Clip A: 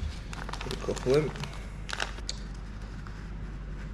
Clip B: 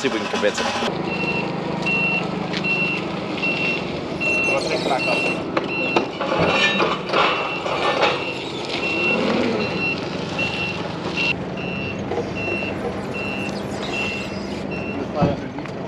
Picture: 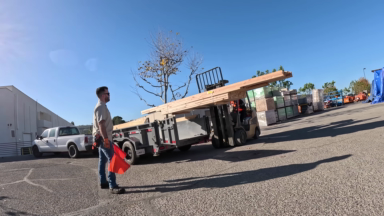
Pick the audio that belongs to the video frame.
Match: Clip B